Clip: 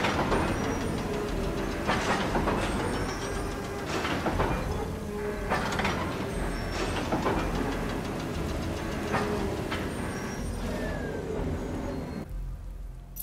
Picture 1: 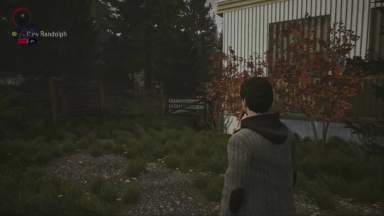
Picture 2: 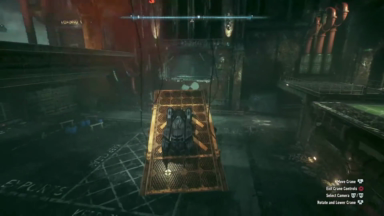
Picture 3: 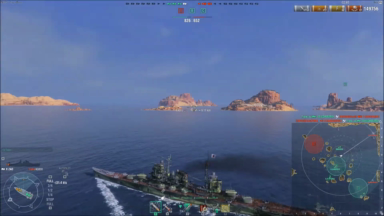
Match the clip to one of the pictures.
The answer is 2